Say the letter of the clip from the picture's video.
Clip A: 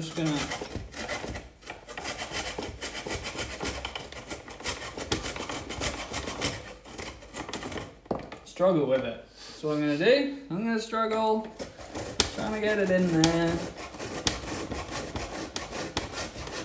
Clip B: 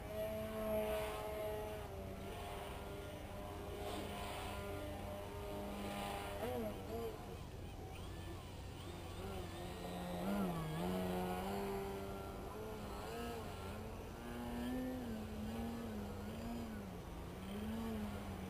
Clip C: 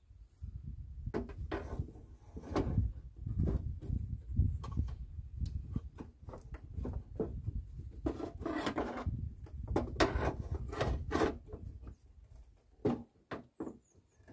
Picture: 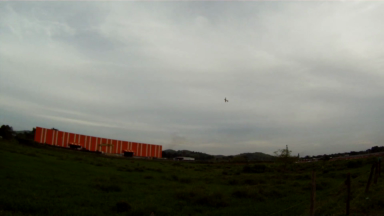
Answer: B